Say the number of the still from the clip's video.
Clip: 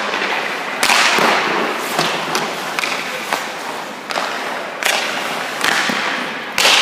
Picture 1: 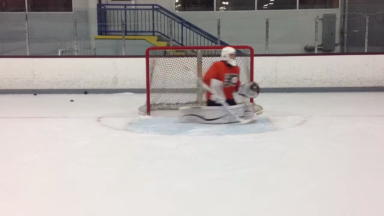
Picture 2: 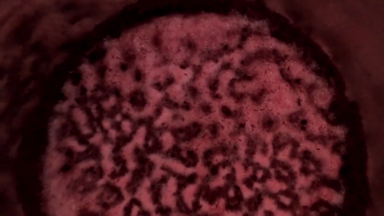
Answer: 1